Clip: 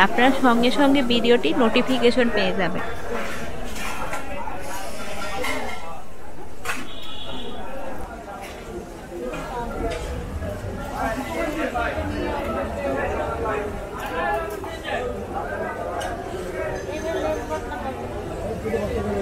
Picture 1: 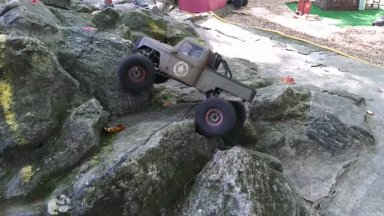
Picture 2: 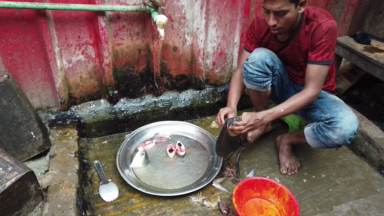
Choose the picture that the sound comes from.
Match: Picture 2